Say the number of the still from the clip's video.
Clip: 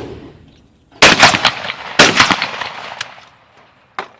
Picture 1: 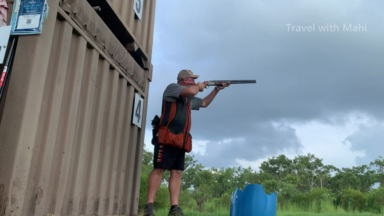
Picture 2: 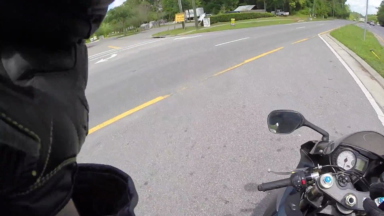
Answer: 1